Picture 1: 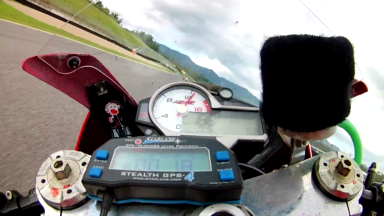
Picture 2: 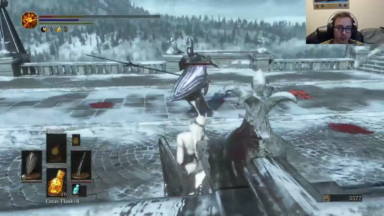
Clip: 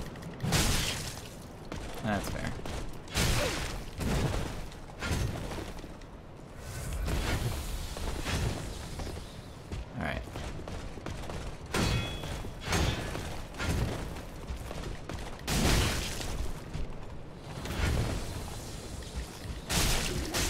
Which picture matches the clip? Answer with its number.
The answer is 2